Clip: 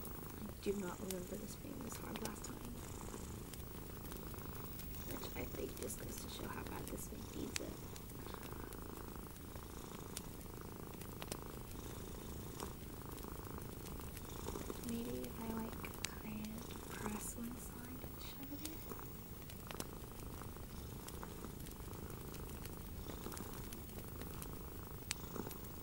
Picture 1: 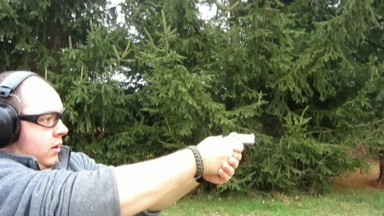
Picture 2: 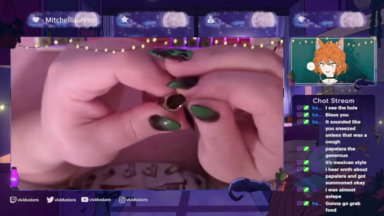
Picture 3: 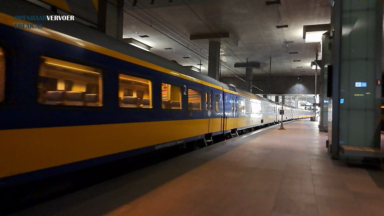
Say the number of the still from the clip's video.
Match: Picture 2